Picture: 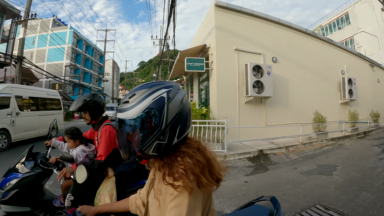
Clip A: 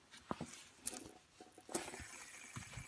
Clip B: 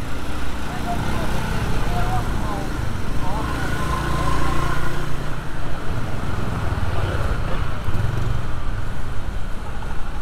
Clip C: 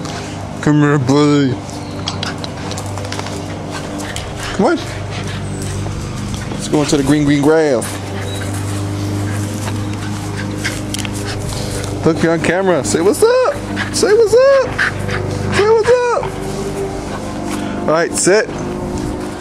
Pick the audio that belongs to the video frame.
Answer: B